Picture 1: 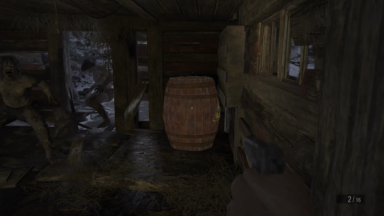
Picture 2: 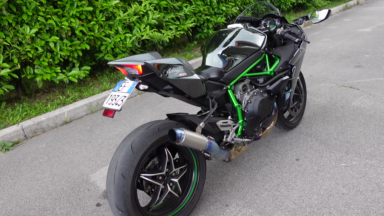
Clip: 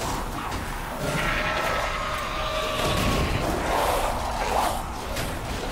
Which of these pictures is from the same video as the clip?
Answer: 1